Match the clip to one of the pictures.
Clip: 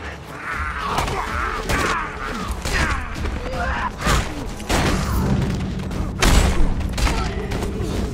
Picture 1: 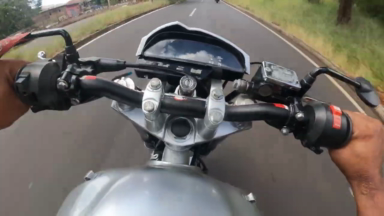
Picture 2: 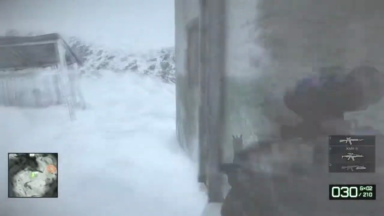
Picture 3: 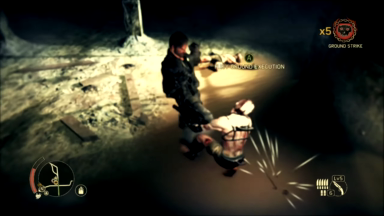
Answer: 3